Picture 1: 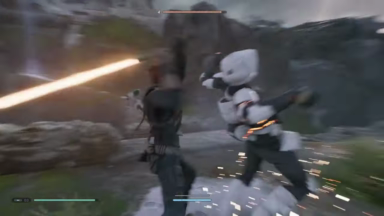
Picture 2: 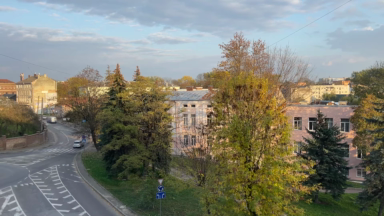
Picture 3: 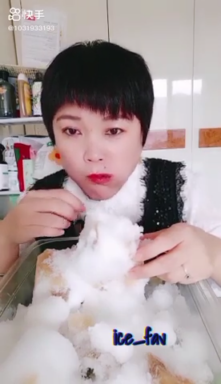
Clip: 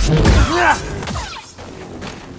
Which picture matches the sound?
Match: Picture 1